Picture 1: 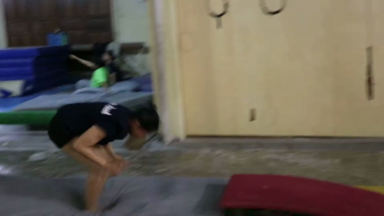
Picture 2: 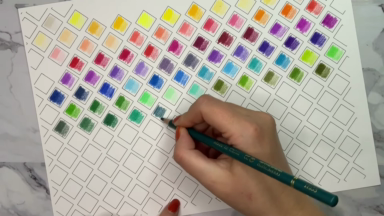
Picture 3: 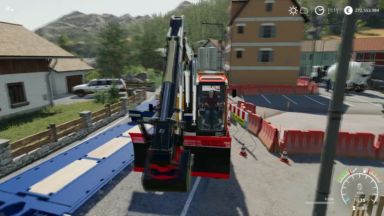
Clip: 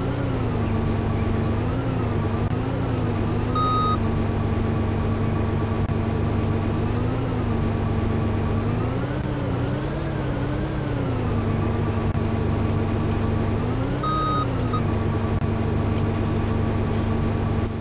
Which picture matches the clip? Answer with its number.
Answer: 3